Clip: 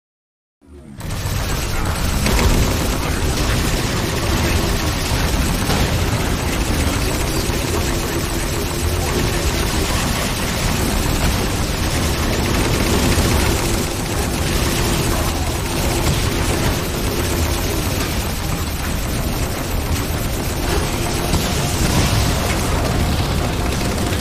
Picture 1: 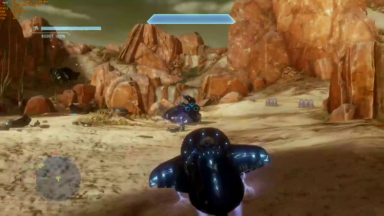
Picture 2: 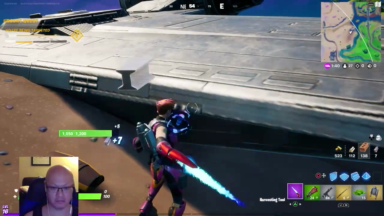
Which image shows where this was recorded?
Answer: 1